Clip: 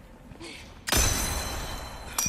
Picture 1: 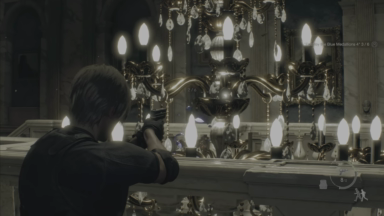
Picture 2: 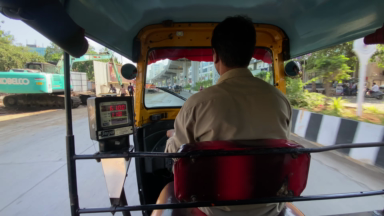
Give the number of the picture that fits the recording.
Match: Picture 1